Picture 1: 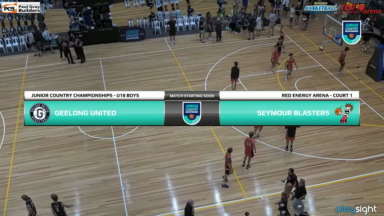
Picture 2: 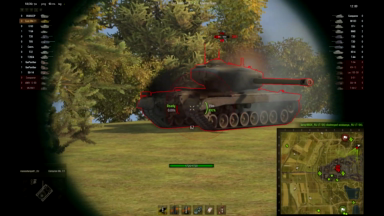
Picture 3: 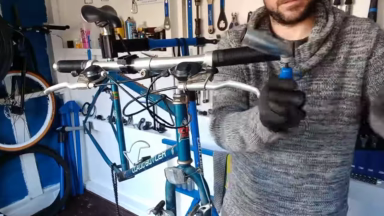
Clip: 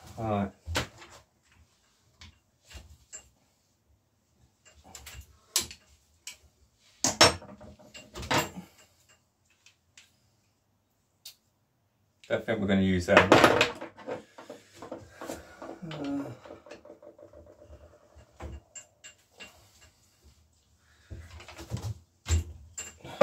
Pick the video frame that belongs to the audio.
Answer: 3